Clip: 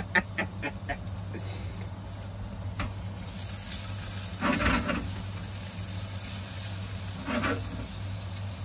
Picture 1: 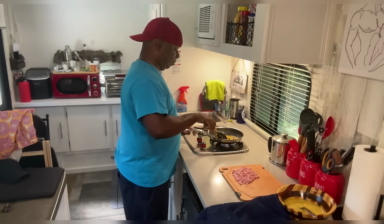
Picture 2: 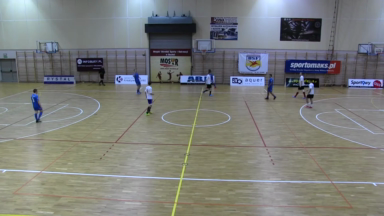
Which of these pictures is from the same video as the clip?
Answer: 1